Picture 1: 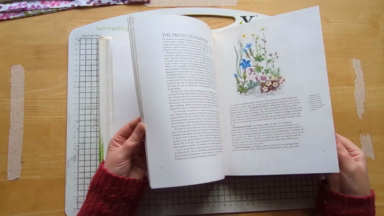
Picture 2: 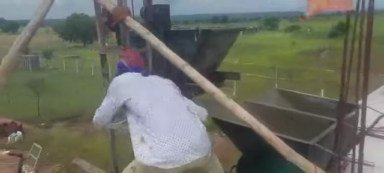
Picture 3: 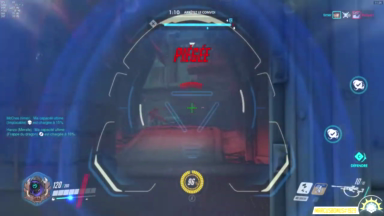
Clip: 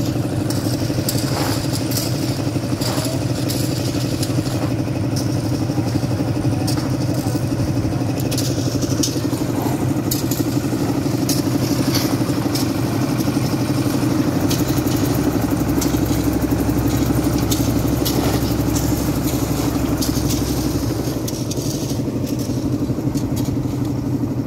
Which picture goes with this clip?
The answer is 2